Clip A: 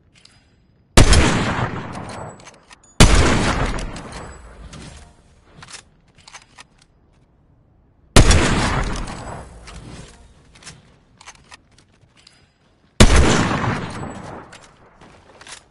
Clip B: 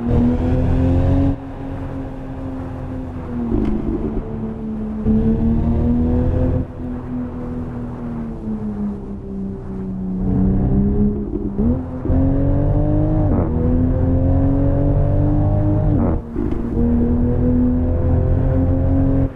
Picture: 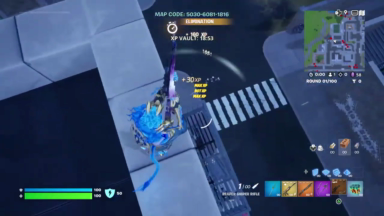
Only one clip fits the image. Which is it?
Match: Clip A